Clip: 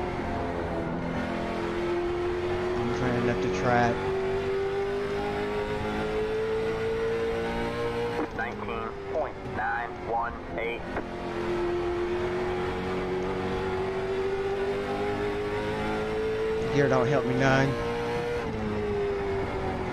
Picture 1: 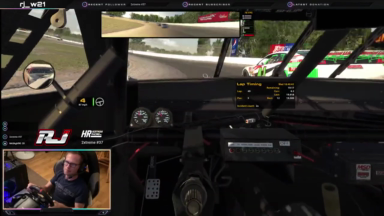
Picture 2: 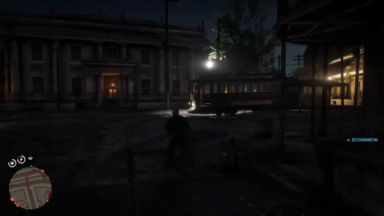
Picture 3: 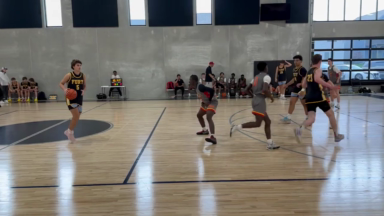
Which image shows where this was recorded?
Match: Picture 1